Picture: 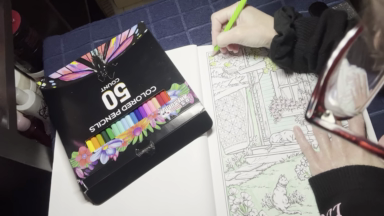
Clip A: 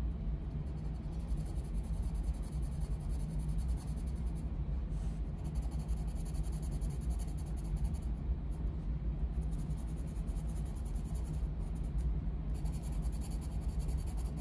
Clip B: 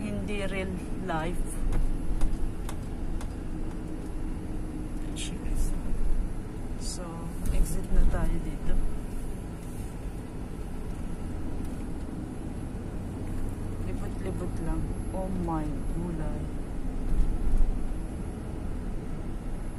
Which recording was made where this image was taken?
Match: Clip A